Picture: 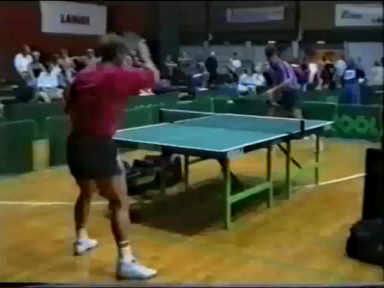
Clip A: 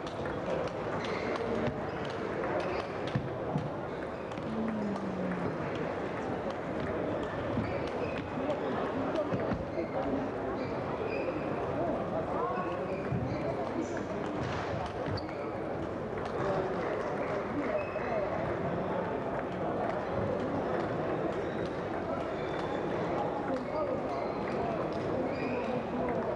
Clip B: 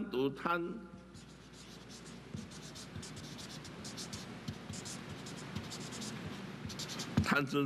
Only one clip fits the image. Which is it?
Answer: A